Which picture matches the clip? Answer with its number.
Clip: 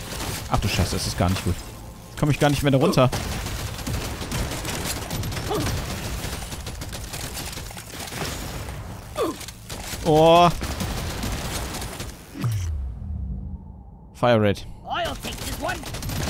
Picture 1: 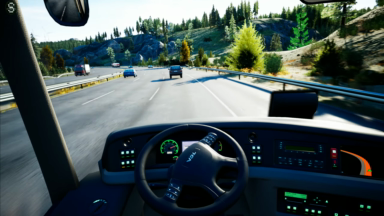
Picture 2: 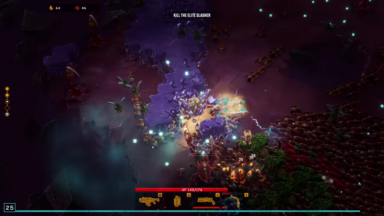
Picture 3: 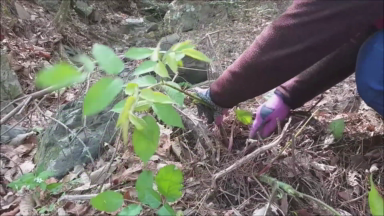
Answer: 2